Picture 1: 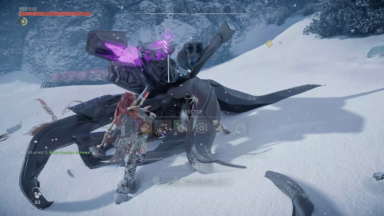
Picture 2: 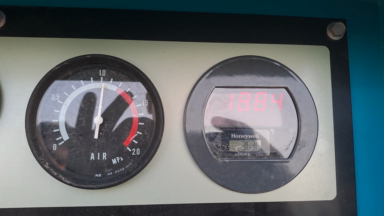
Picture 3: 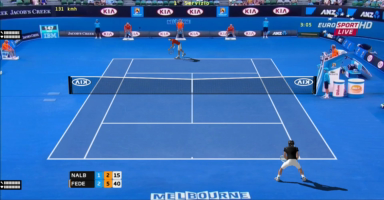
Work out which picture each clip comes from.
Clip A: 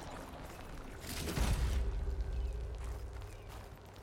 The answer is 1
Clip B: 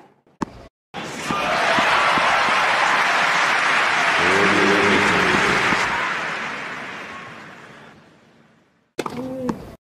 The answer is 3